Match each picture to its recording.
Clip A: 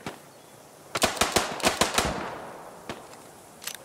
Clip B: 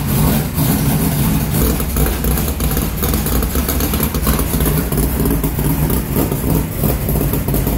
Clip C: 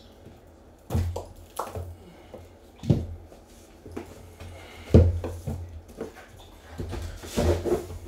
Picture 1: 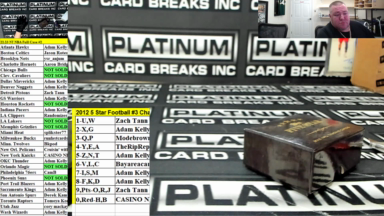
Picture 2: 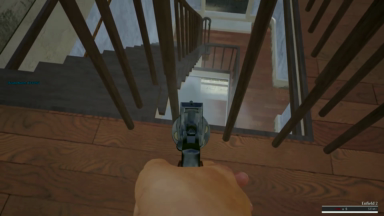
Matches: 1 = C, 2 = A